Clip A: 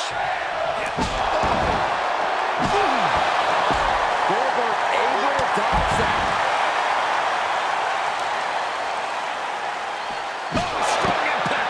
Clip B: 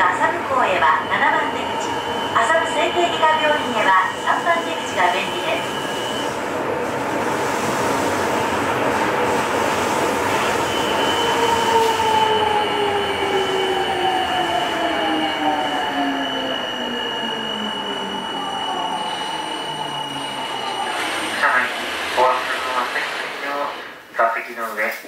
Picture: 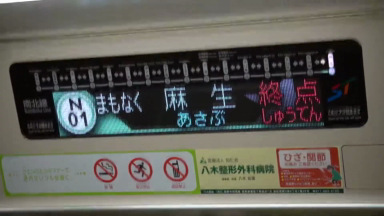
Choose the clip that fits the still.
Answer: B